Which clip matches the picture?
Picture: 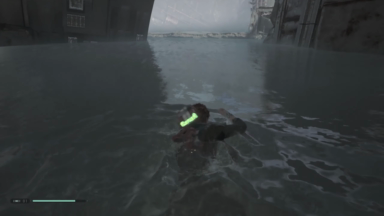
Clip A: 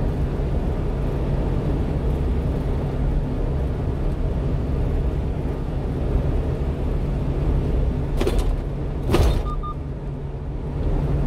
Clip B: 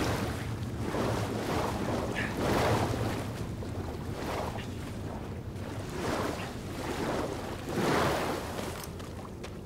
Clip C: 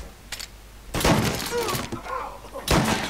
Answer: B